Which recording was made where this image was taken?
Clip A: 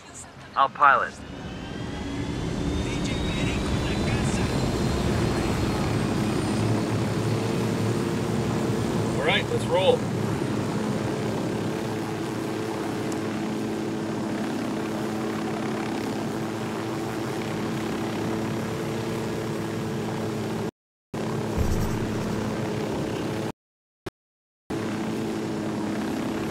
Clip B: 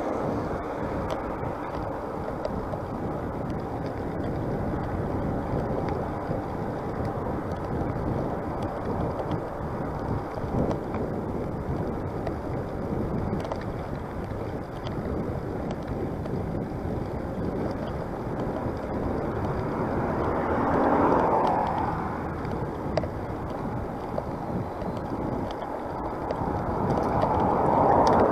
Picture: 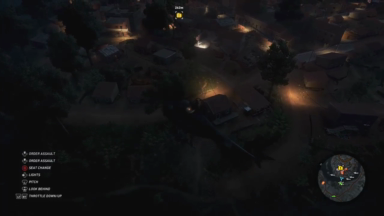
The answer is A